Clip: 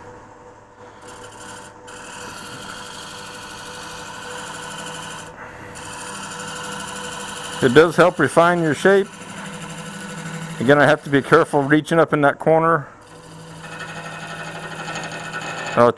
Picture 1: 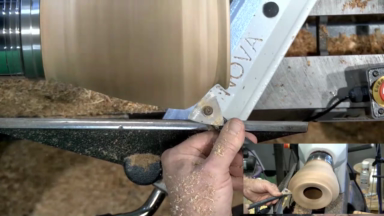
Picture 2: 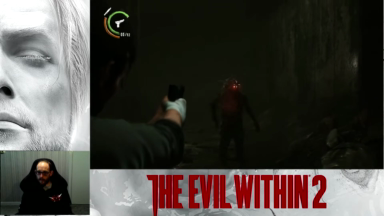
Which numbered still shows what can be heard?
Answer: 1